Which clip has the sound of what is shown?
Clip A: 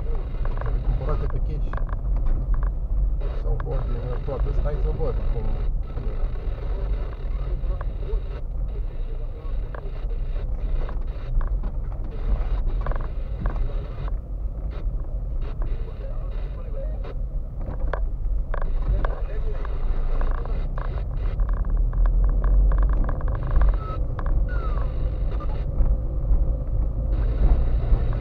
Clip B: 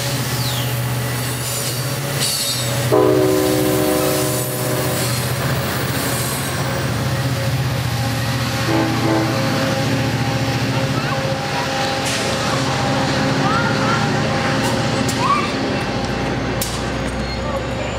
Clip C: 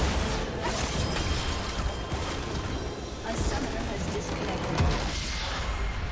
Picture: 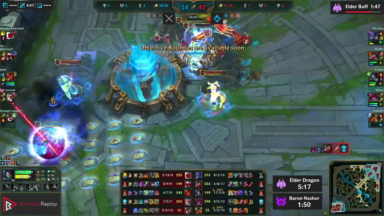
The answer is C